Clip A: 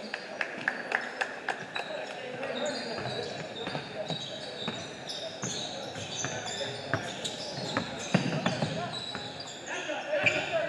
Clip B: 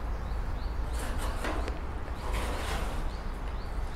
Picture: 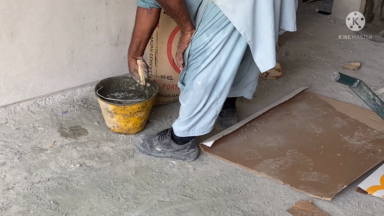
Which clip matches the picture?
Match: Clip B